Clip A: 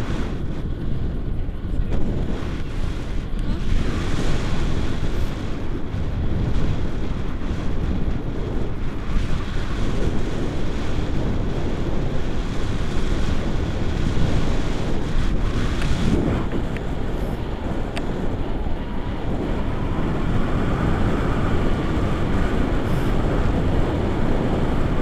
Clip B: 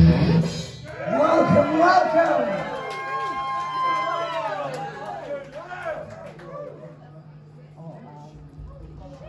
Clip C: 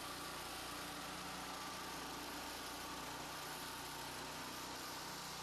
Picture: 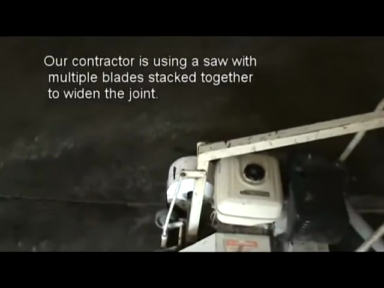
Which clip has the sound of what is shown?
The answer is C